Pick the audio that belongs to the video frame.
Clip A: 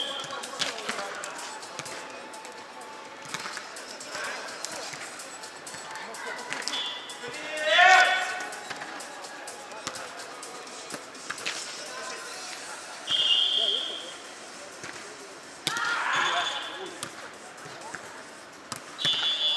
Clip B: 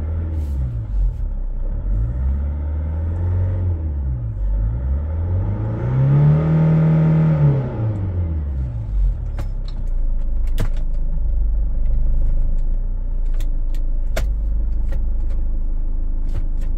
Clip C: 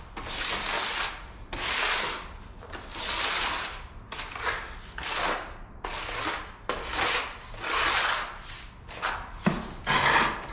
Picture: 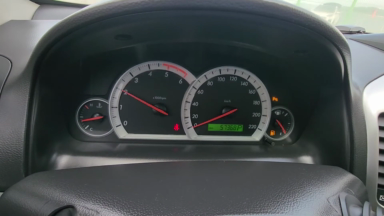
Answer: B